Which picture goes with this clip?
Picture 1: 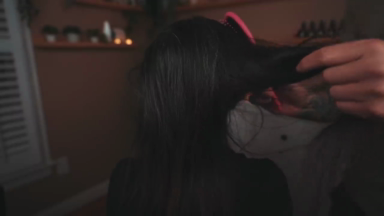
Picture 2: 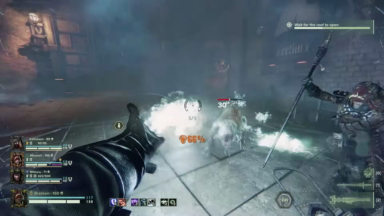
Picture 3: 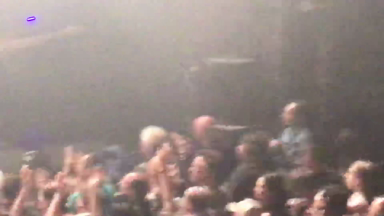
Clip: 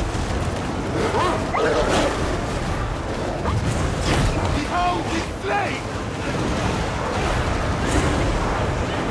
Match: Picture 2